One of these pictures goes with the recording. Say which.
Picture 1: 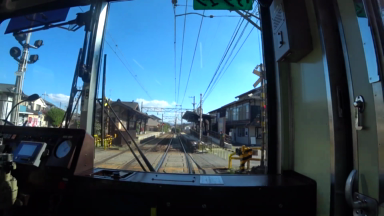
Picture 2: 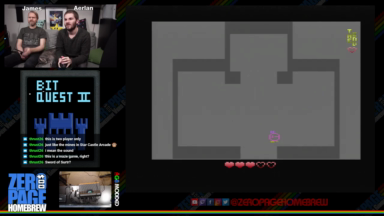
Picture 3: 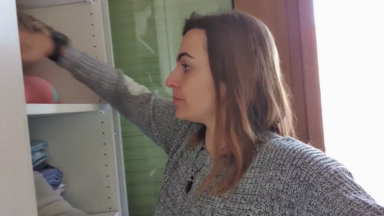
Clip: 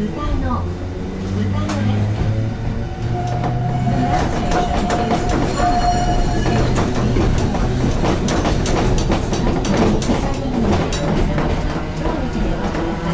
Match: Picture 1